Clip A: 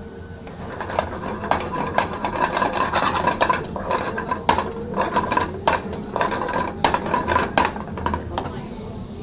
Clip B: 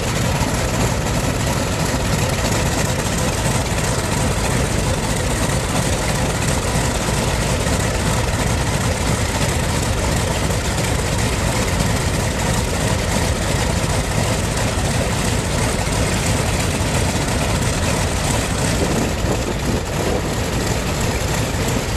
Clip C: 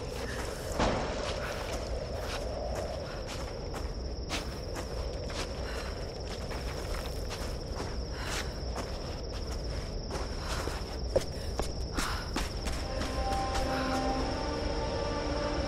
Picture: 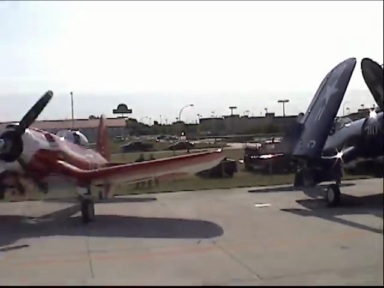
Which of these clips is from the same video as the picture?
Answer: B